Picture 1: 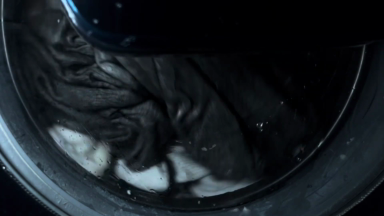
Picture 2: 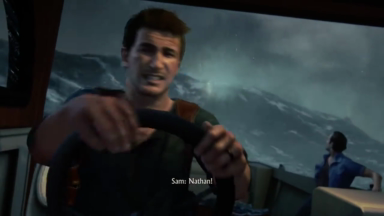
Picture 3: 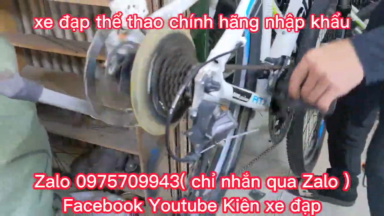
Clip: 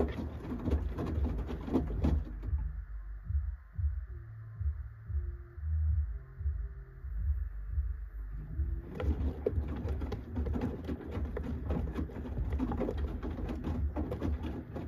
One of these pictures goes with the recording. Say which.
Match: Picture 1